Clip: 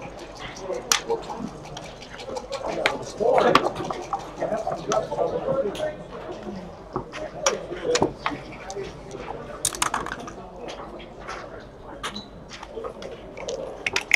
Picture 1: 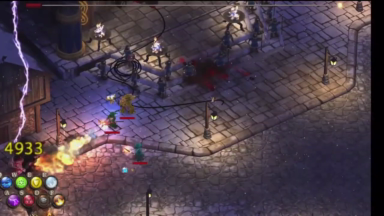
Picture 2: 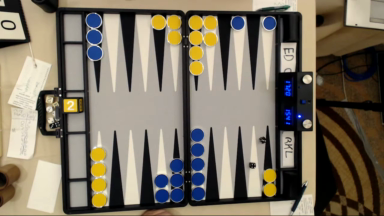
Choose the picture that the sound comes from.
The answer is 2